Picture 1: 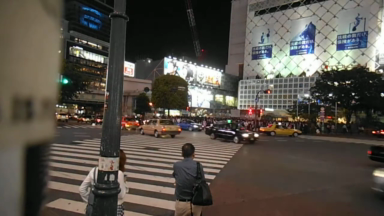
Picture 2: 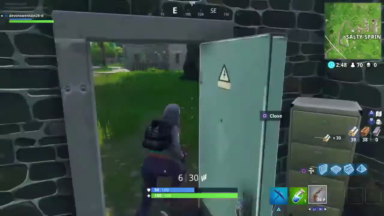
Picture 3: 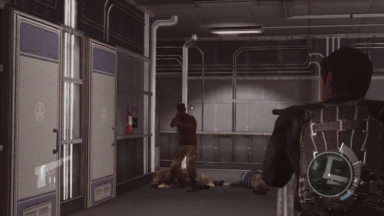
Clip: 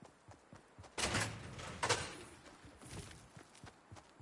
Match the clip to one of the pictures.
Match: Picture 2